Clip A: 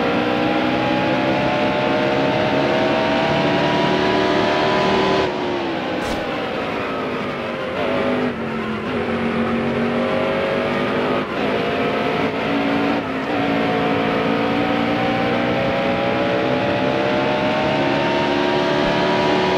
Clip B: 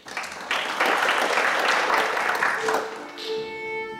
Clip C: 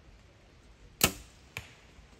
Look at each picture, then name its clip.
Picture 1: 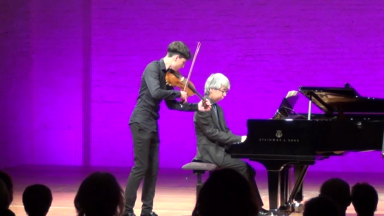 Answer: B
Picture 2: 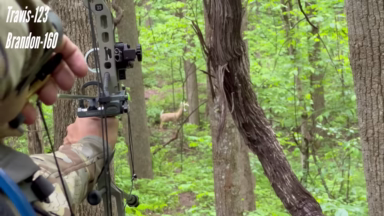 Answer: C